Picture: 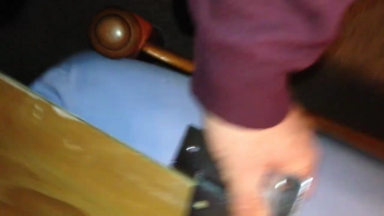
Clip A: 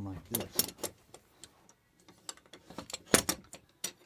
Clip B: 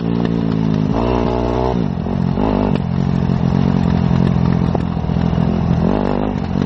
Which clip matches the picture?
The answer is A